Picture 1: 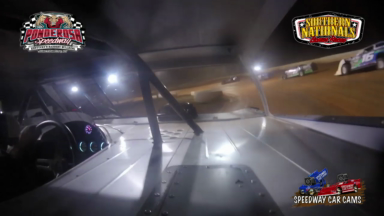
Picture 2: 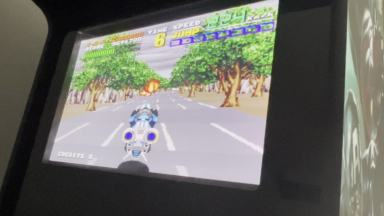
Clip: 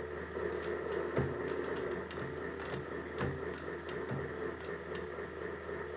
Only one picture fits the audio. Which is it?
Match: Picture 2